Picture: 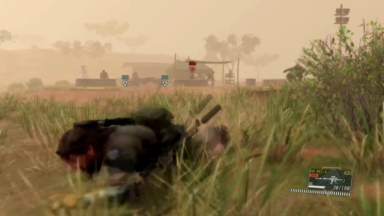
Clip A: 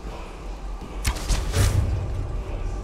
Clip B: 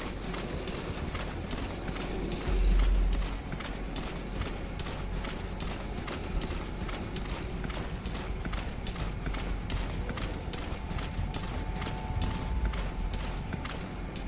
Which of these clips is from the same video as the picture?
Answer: B